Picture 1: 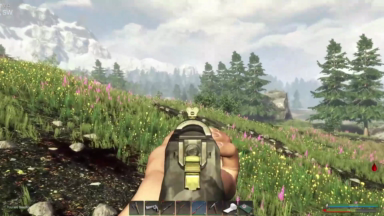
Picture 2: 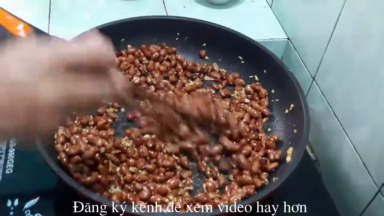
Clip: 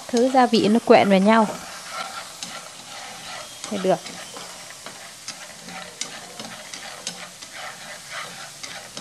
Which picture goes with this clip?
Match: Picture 2